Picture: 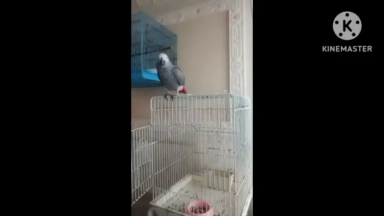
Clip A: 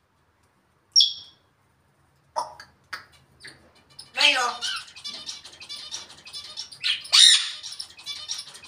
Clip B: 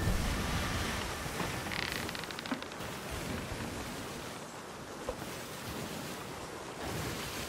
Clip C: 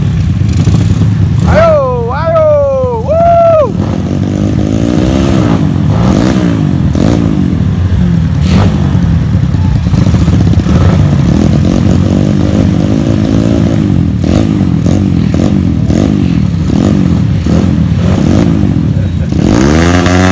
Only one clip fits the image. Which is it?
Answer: A